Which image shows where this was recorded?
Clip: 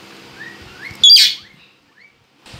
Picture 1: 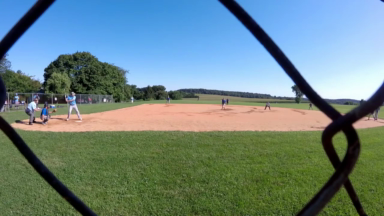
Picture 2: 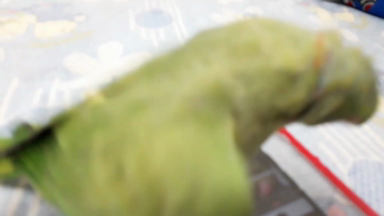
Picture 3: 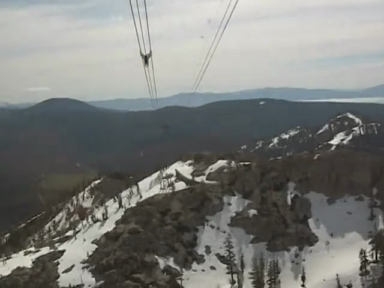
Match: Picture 2